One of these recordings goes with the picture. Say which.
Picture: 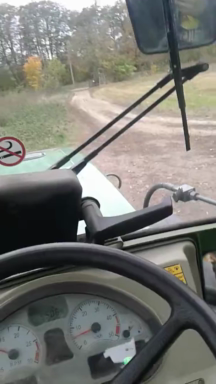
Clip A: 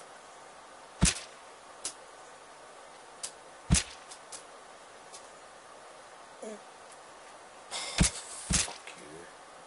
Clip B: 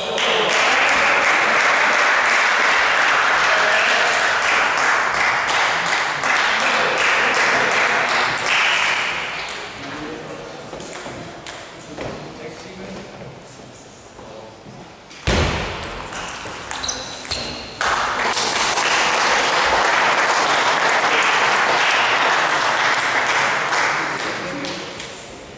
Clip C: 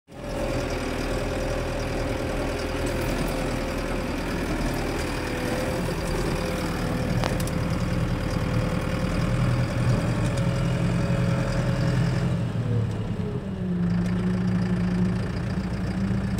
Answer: C